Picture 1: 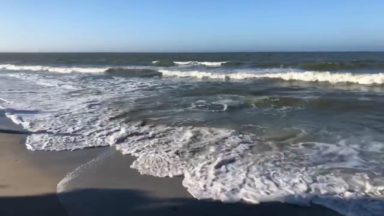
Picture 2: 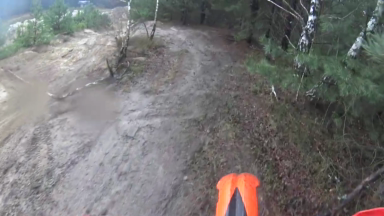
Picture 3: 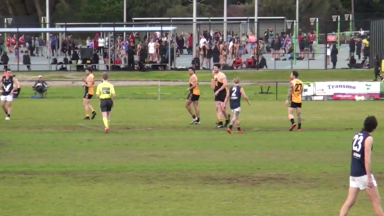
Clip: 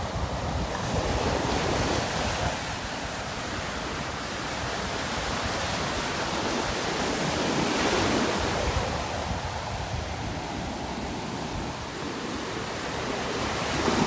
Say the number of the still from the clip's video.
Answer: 1